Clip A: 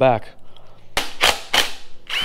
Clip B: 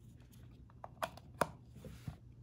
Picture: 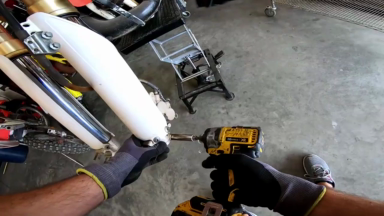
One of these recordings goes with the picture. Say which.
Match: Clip A